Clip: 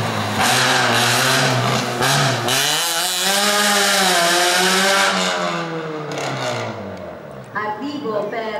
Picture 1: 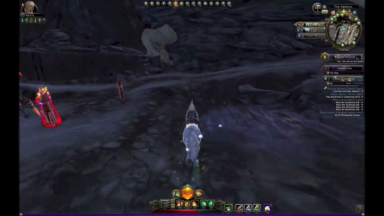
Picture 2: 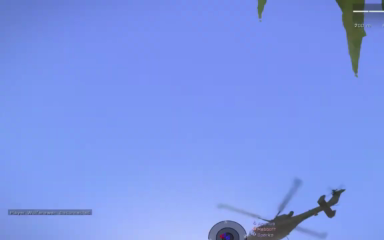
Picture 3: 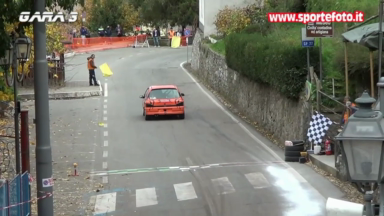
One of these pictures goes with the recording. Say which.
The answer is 3